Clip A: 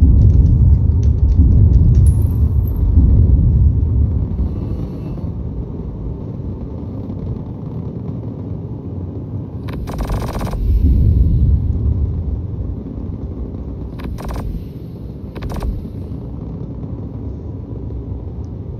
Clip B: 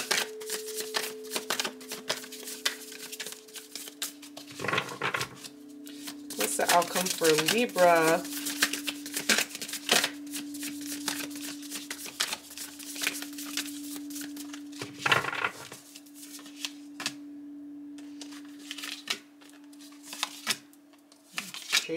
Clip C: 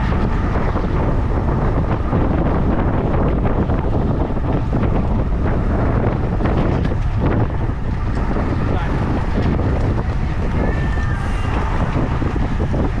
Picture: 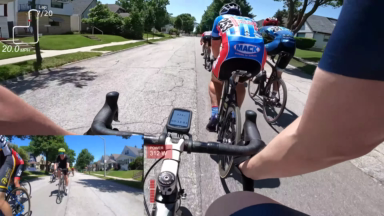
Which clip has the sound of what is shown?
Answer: C